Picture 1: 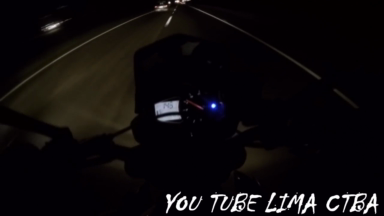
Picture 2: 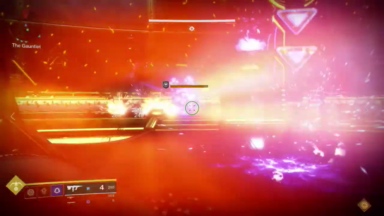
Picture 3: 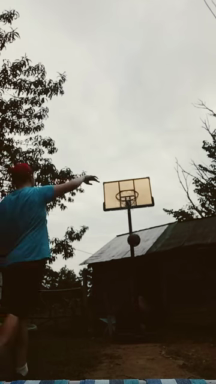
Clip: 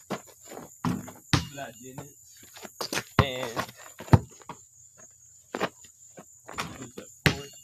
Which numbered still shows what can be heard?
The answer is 3